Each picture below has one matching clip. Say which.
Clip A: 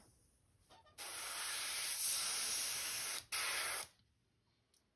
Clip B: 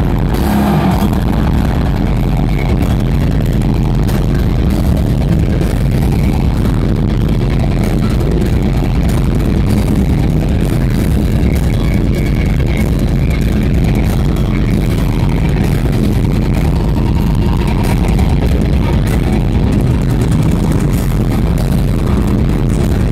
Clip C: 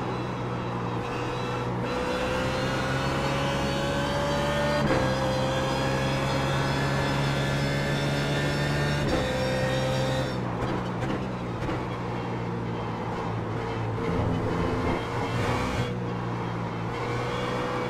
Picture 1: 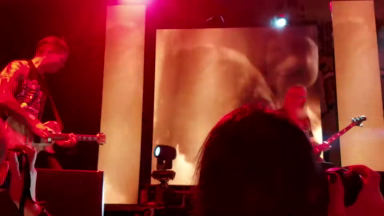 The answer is B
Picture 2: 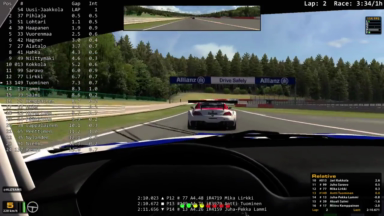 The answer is C